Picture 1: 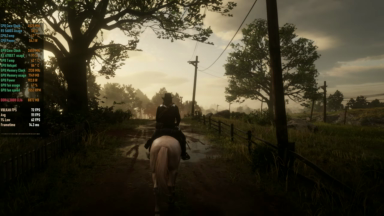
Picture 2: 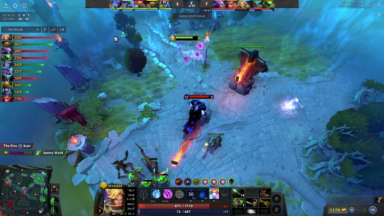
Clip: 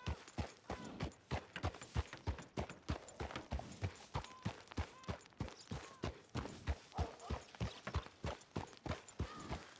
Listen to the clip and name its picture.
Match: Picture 1